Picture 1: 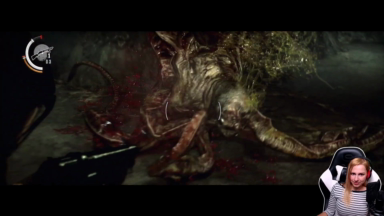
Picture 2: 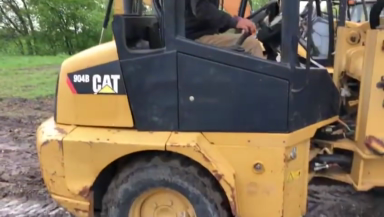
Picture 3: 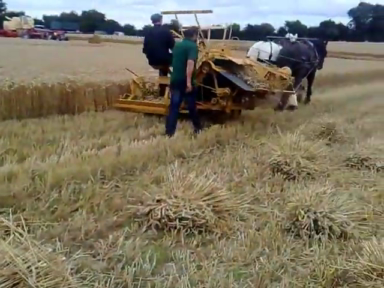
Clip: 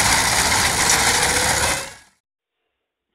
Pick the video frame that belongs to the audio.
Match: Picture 3